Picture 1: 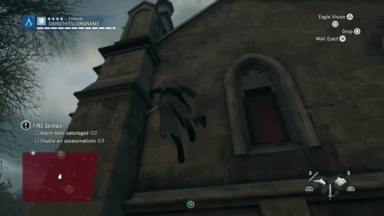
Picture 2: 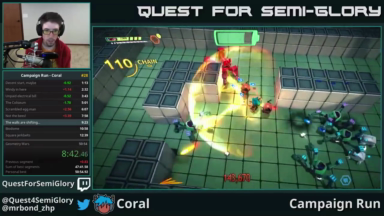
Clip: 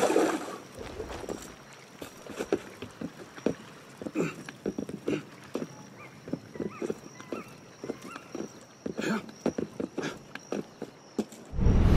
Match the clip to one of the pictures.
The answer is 1